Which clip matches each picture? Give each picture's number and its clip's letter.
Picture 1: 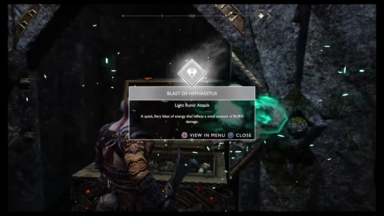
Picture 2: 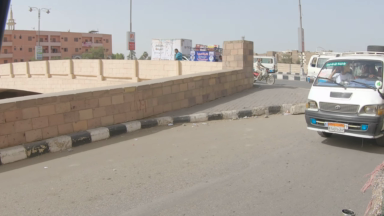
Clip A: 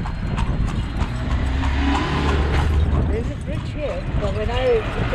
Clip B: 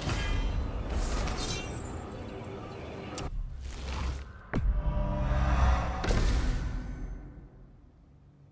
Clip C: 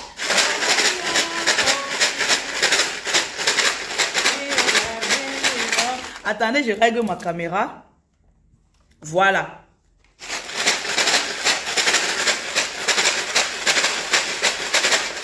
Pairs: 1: B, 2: A